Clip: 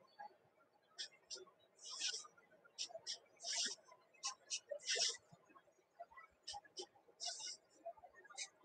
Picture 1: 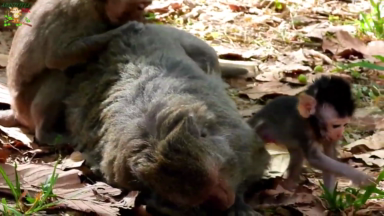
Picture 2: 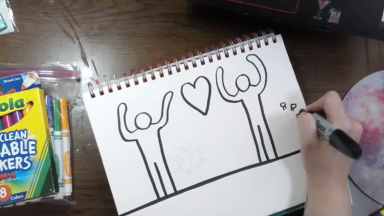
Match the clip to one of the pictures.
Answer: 2